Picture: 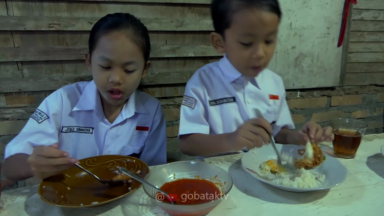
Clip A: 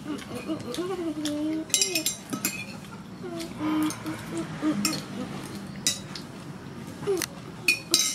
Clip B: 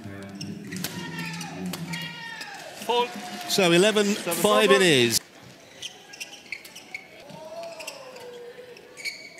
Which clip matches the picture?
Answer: A